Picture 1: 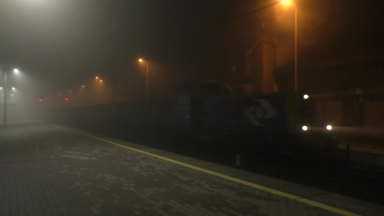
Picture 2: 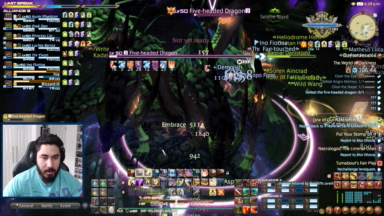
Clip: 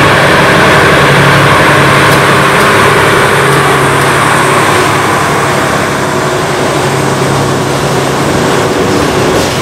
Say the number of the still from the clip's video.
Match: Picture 1